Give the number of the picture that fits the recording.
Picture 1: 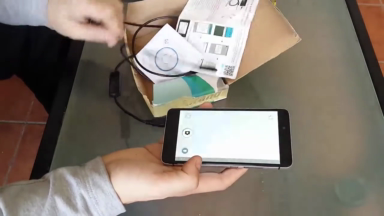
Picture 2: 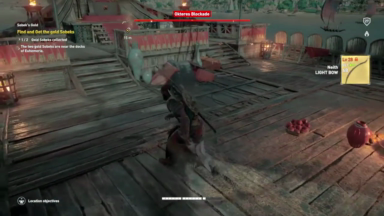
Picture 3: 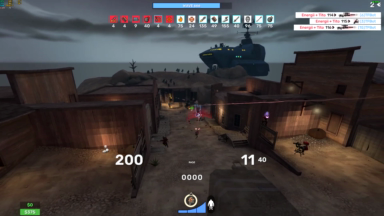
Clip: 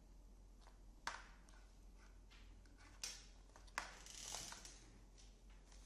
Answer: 1